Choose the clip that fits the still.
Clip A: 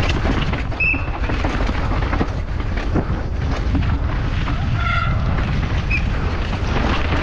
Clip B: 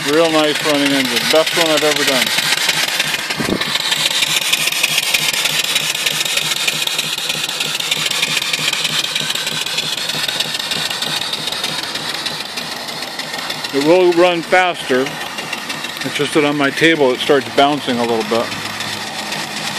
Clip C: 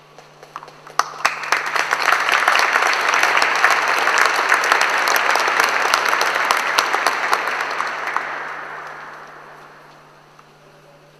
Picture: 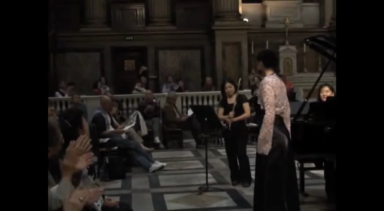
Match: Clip C